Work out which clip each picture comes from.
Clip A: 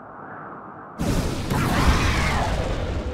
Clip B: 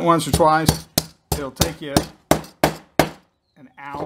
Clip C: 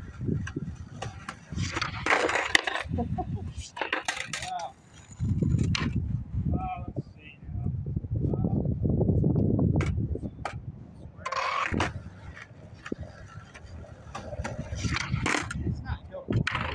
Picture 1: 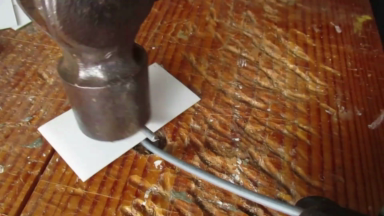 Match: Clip B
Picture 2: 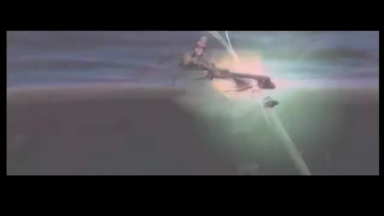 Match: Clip A